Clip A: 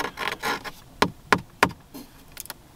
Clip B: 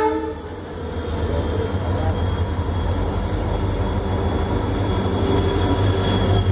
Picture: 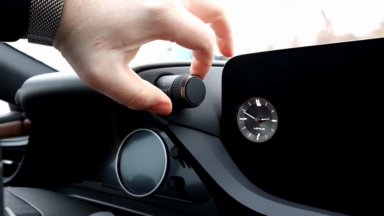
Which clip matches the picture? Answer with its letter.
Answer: A